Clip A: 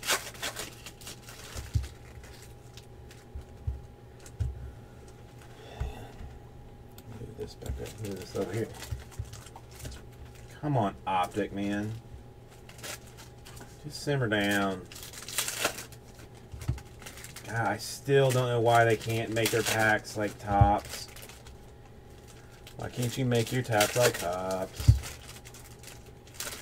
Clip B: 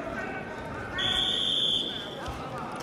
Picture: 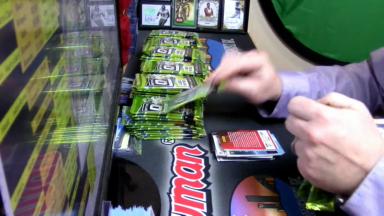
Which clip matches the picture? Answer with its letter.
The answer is A